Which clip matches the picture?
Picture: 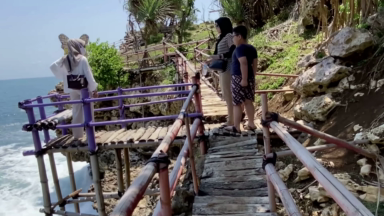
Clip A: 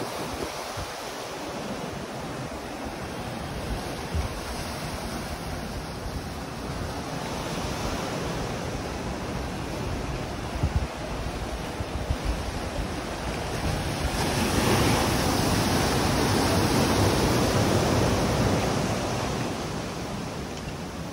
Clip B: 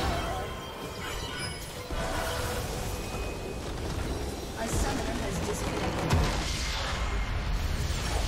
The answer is A